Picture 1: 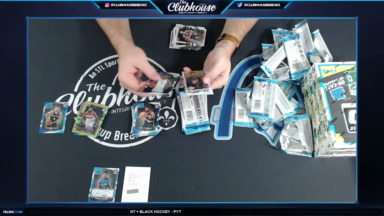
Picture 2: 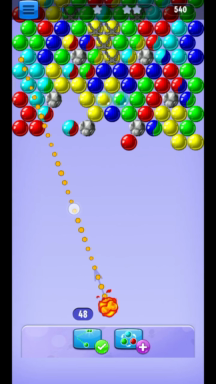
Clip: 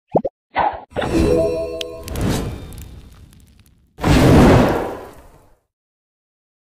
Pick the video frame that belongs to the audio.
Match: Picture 2